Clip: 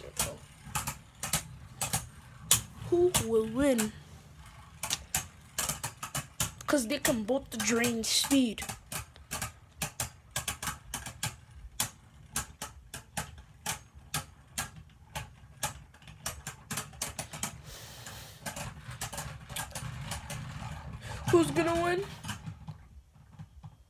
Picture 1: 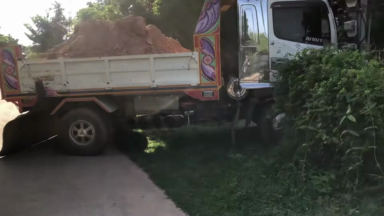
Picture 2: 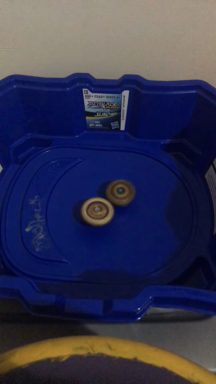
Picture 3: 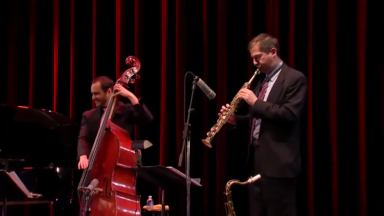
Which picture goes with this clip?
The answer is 2